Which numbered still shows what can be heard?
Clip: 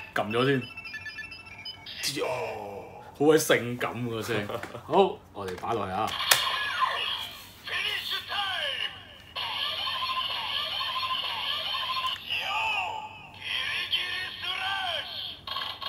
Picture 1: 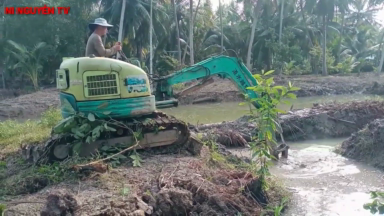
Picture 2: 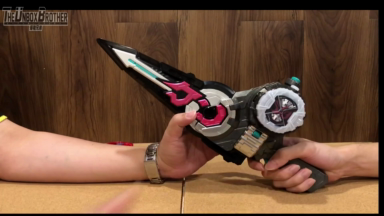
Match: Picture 2